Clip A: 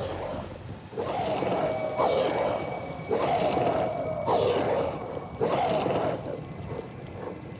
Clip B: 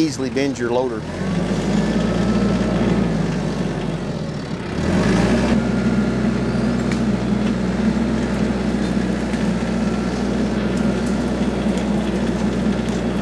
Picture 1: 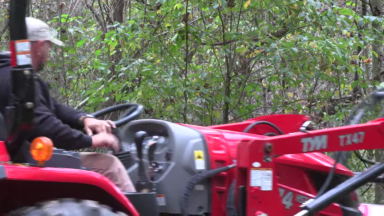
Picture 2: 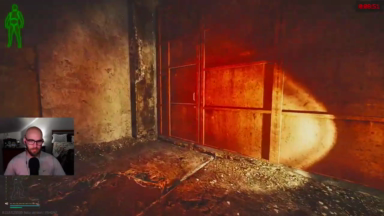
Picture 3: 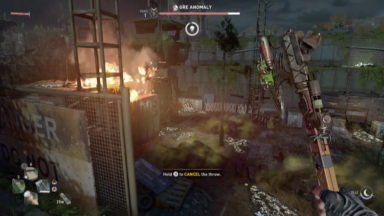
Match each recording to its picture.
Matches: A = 3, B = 1